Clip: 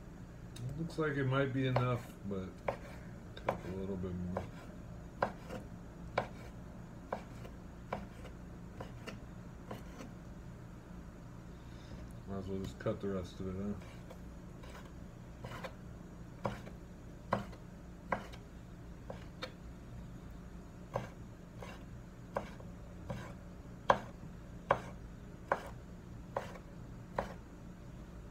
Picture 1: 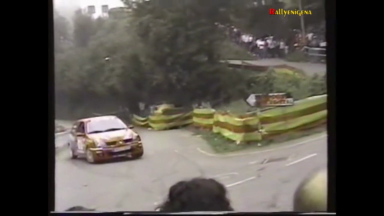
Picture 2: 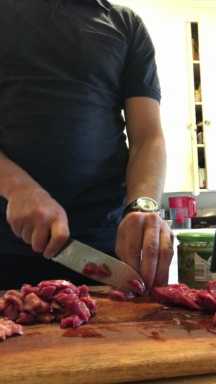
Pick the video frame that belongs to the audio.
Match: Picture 2